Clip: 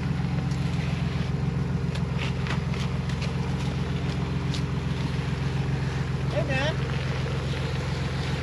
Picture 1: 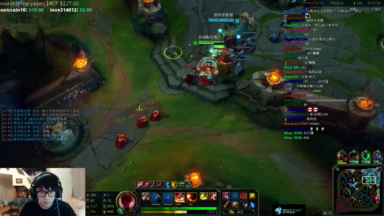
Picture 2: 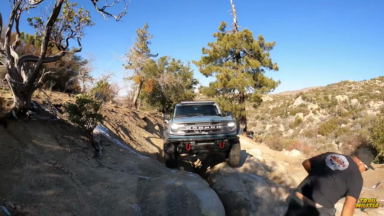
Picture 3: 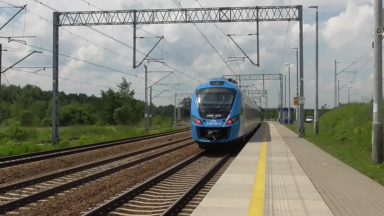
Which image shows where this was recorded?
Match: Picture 2